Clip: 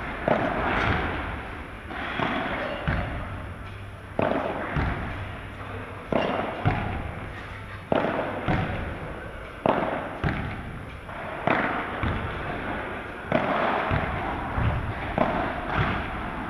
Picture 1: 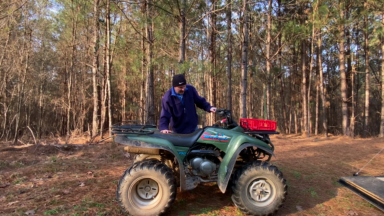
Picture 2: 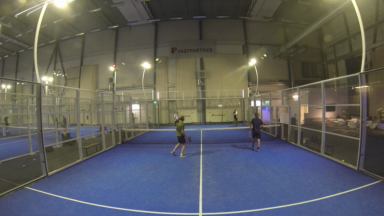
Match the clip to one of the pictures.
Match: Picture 2